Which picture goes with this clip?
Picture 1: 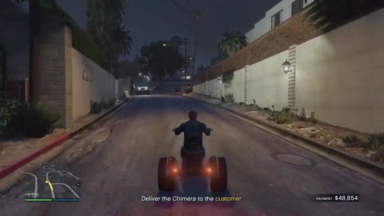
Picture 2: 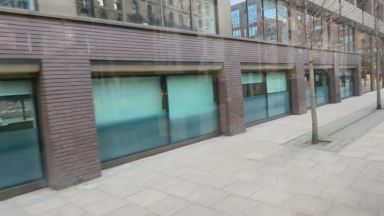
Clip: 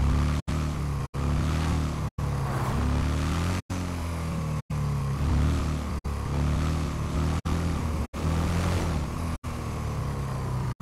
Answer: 1